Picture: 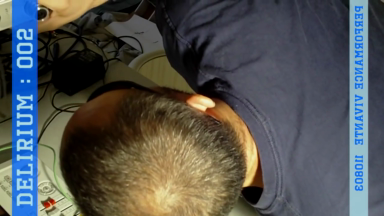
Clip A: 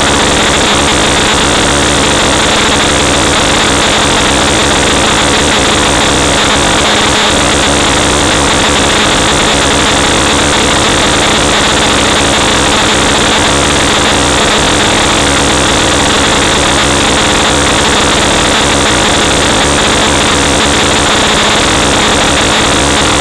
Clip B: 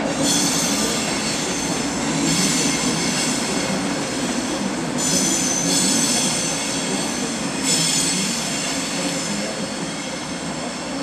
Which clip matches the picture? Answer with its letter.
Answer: A